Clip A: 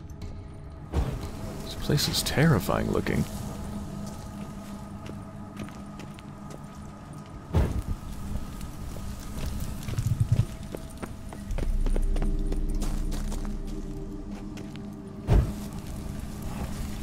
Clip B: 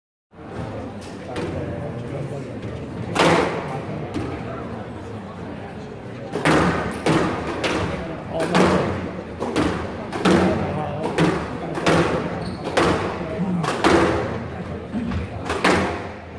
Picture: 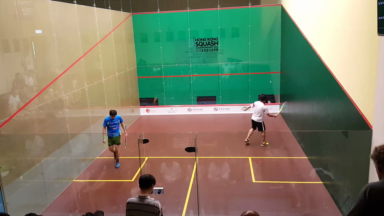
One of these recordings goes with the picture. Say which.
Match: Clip B